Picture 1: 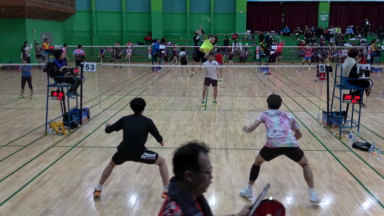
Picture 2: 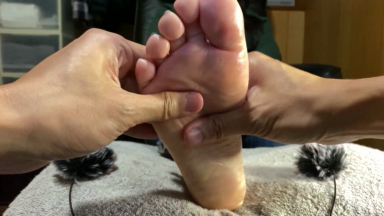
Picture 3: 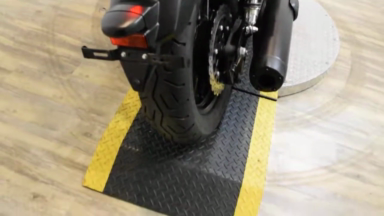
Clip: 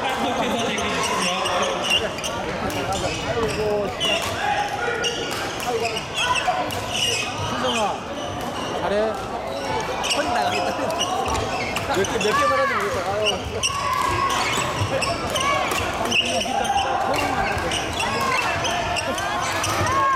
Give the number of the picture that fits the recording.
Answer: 1